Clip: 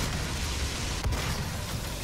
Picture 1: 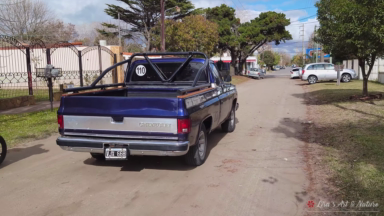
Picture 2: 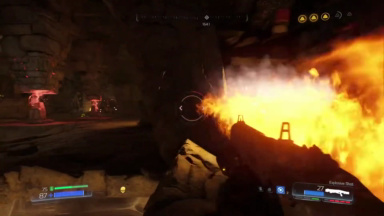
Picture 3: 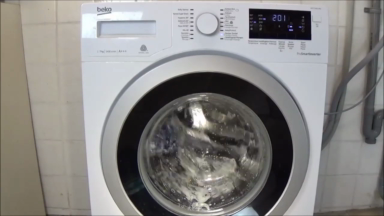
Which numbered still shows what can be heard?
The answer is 2